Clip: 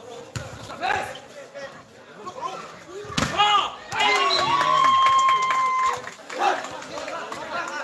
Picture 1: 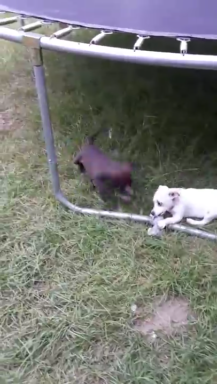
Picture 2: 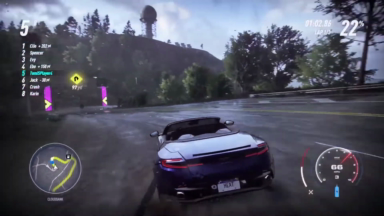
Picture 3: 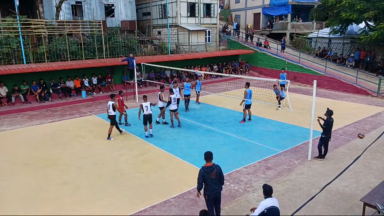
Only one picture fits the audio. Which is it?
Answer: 3